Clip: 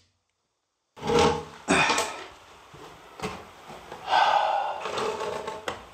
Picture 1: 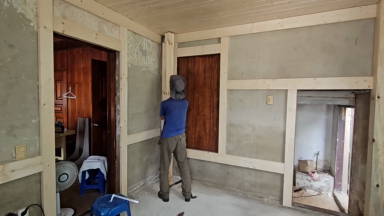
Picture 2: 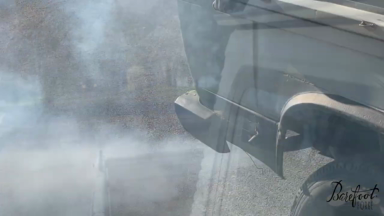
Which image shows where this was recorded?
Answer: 1